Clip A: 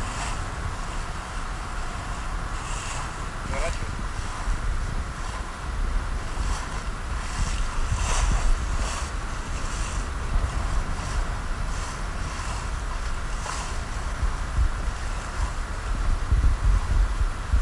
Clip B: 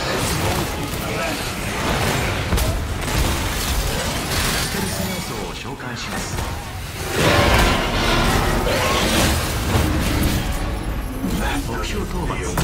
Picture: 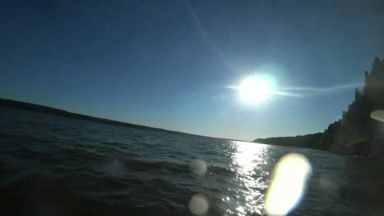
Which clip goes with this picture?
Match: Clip A